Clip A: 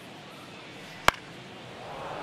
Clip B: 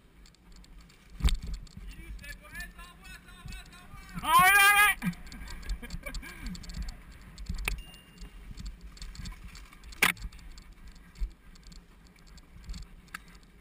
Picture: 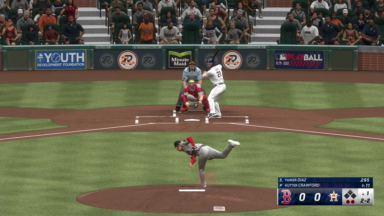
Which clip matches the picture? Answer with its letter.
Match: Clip A